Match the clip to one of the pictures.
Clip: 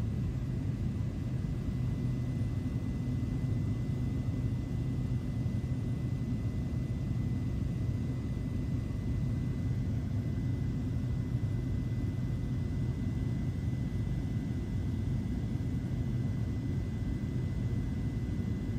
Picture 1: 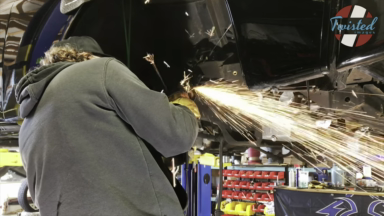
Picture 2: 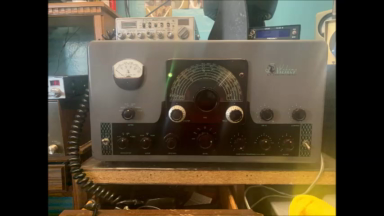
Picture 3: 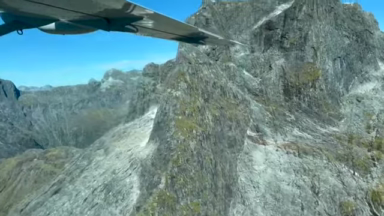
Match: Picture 3